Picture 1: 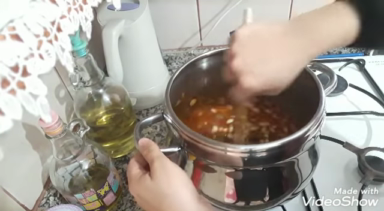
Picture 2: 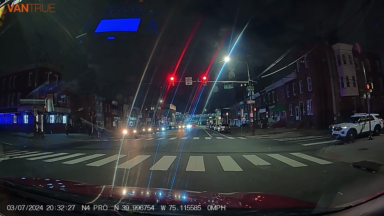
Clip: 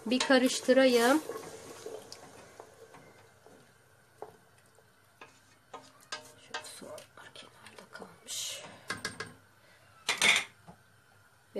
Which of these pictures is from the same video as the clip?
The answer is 1